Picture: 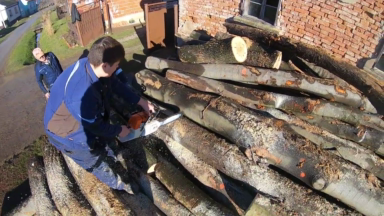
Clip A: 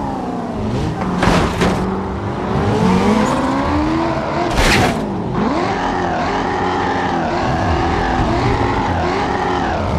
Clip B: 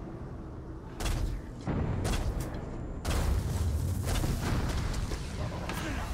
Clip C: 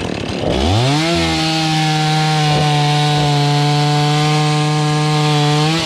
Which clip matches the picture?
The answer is C